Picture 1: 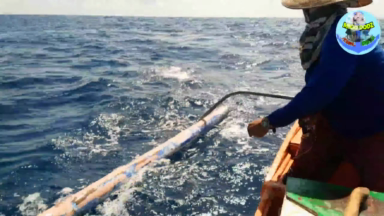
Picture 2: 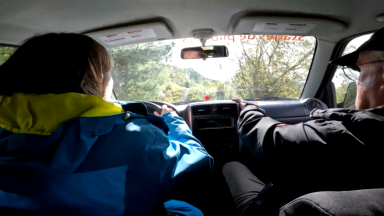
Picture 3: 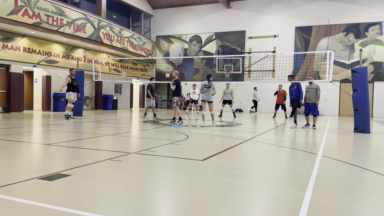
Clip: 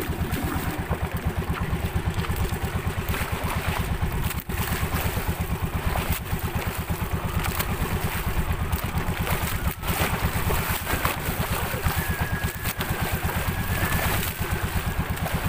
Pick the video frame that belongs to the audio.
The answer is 1